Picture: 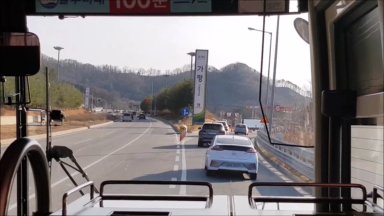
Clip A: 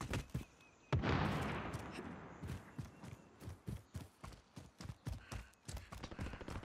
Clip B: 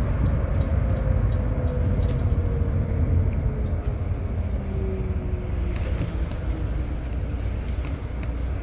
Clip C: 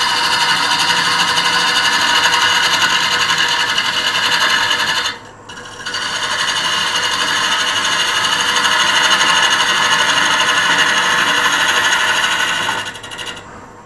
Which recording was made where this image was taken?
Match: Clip B